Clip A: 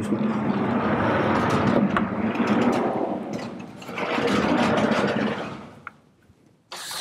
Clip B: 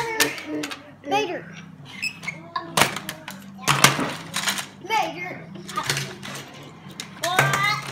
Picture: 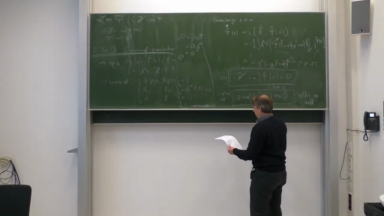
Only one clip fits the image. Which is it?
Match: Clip A